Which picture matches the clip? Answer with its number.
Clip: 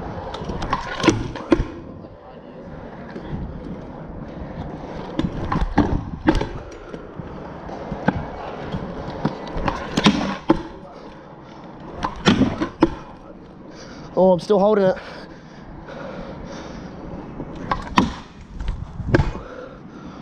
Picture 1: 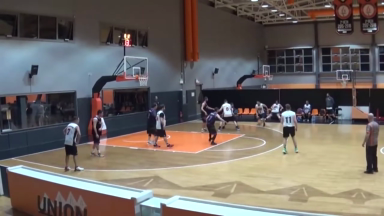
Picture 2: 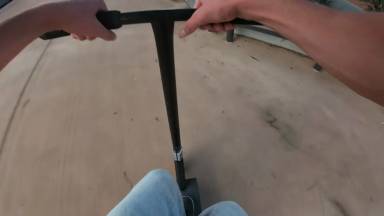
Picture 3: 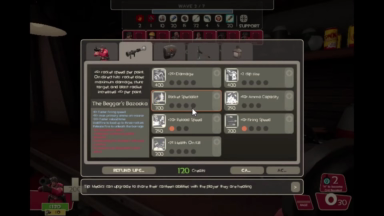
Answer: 2